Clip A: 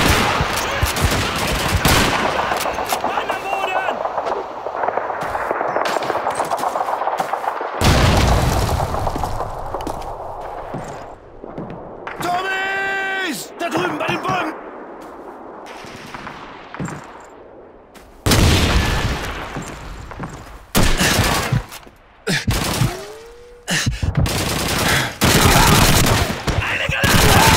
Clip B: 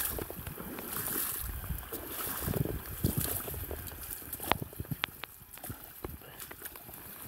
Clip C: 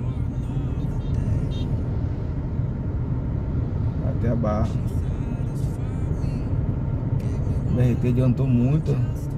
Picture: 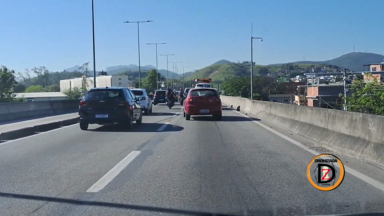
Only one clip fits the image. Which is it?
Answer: C